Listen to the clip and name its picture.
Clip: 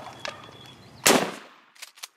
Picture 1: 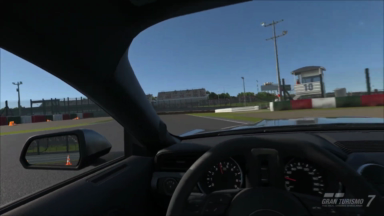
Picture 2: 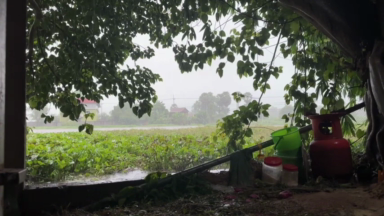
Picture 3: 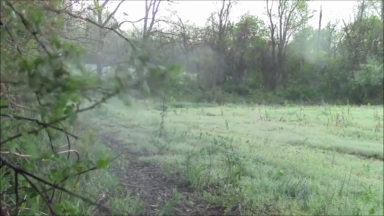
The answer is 3